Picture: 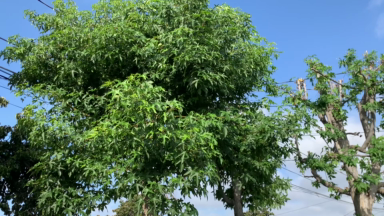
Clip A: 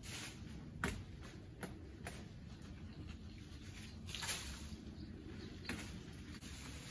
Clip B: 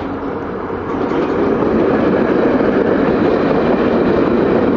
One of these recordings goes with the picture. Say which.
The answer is A